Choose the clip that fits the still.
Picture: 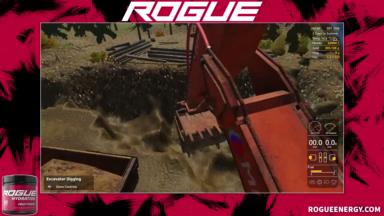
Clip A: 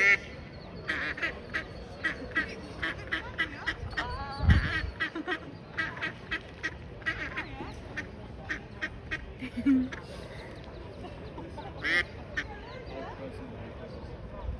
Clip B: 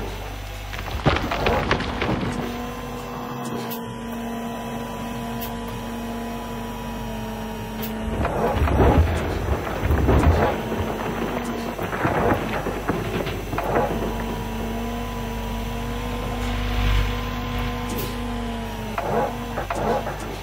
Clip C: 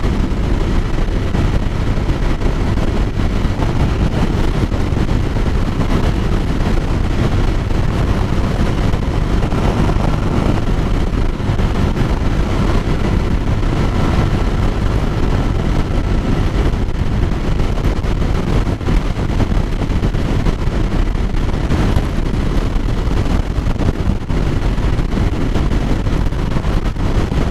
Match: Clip B